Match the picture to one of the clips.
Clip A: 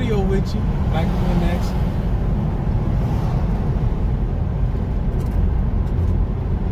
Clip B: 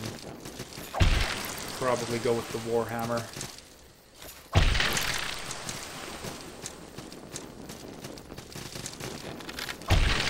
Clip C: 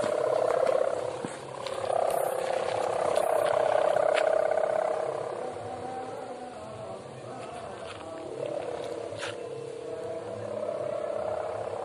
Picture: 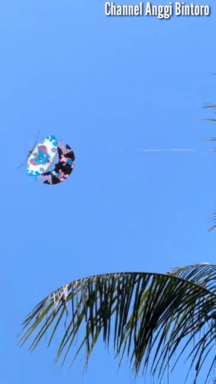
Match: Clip C